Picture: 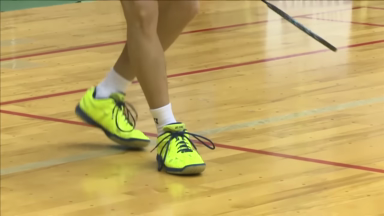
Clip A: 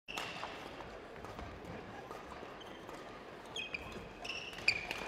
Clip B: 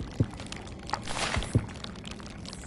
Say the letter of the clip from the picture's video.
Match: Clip A